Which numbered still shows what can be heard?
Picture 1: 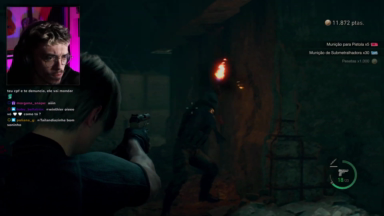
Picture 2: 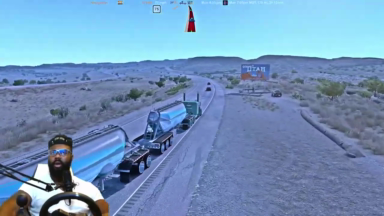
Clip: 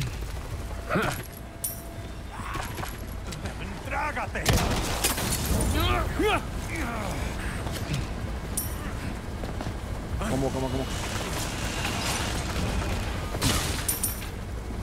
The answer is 1